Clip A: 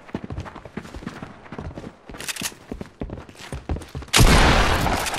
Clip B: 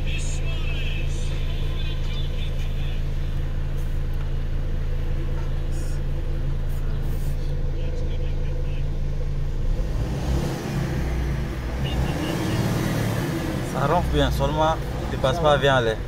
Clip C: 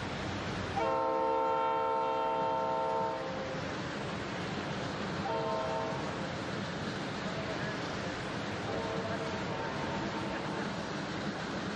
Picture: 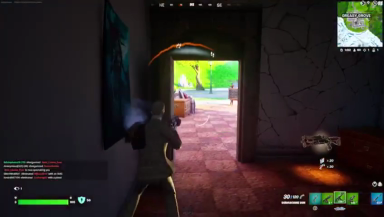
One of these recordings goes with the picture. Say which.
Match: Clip A